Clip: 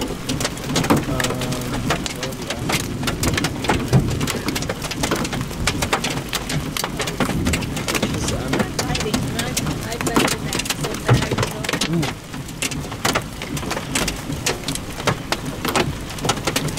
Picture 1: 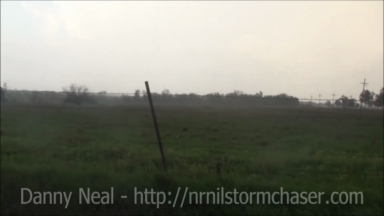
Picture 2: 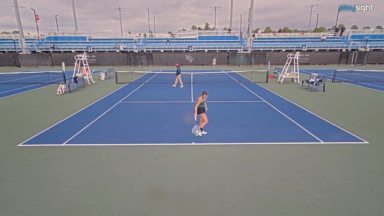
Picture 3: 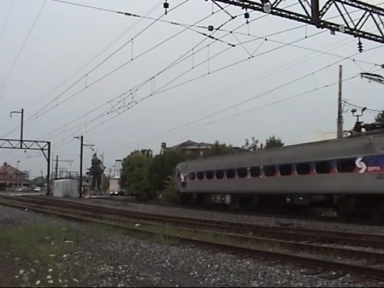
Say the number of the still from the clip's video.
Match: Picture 1